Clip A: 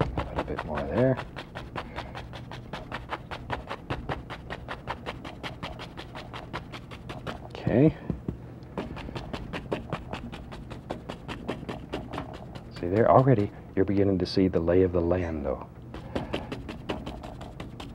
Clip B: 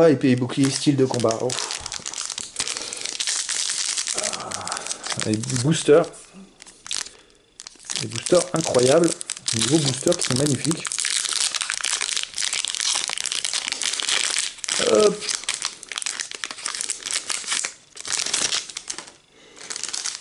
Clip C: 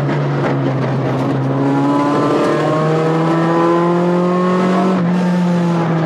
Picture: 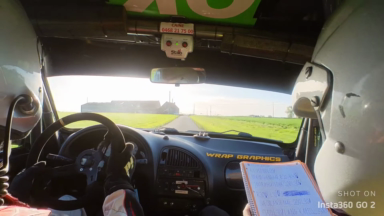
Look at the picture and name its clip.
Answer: C